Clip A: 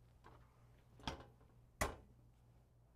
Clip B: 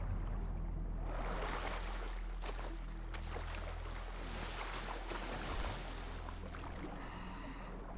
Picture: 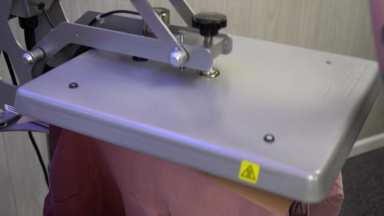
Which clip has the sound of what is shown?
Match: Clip A